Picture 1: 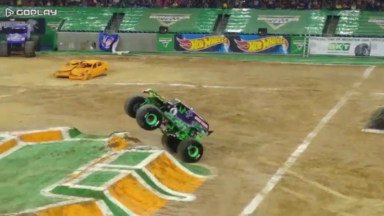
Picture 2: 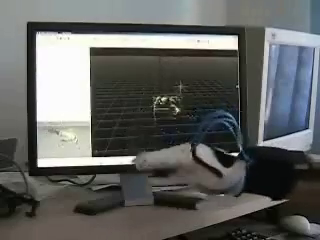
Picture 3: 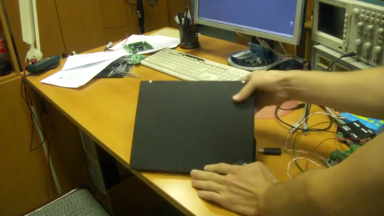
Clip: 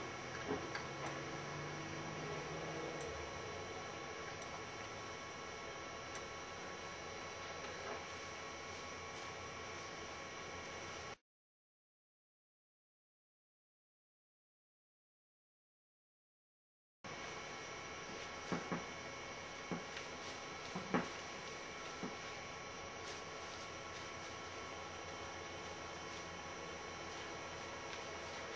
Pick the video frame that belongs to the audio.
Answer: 2